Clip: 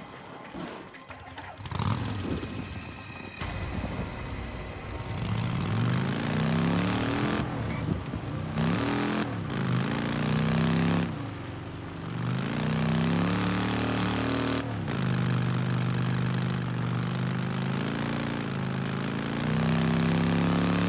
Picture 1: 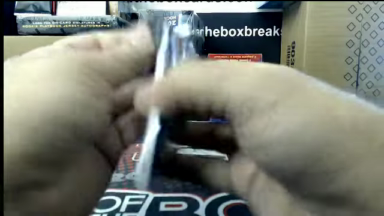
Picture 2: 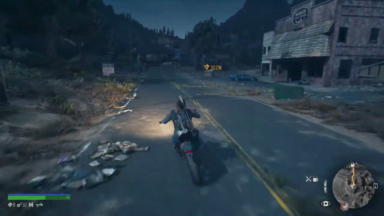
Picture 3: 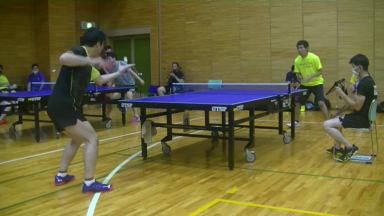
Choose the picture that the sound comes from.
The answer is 2